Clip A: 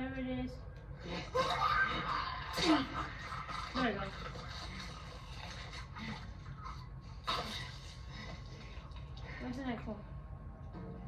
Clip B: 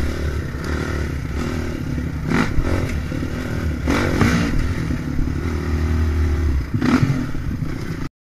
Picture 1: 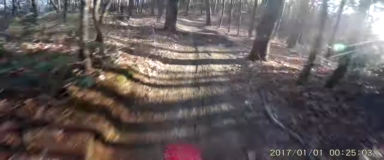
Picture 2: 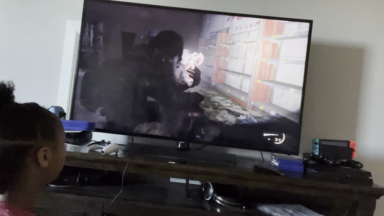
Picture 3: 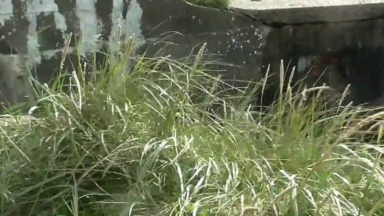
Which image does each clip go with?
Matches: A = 2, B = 1